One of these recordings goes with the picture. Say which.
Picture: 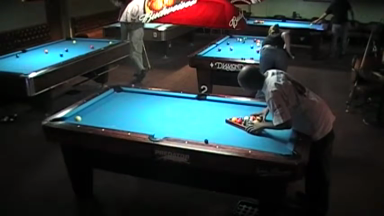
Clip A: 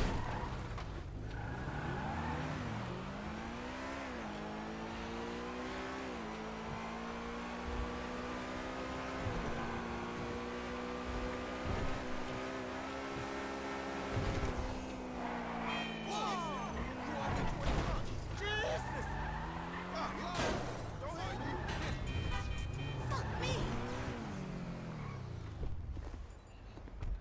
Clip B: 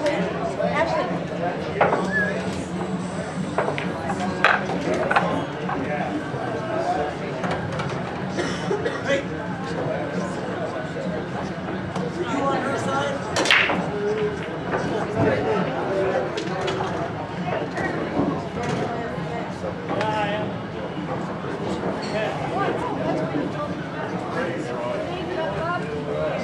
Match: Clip B